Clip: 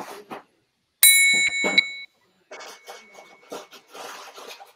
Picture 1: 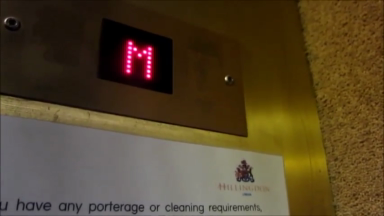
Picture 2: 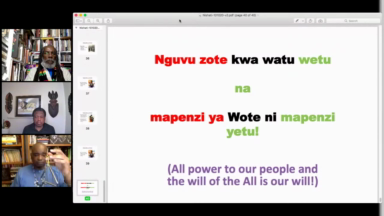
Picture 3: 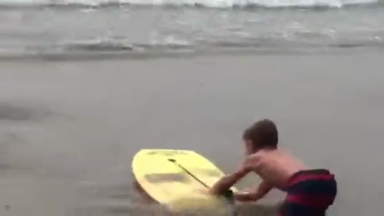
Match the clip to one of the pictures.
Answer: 2